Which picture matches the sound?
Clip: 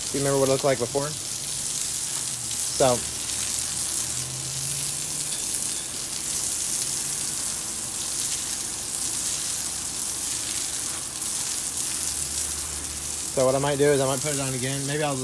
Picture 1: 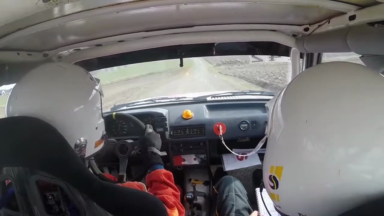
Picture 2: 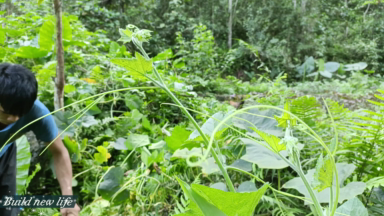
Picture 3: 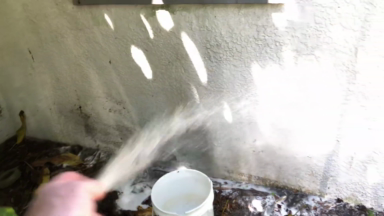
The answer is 3